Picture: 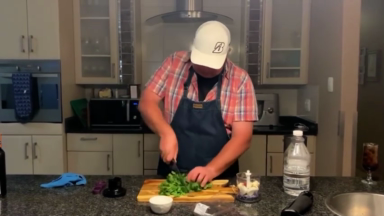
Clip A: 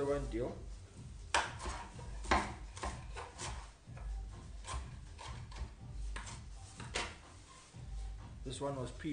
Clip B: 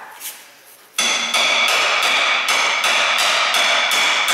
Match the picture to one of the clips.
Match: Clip A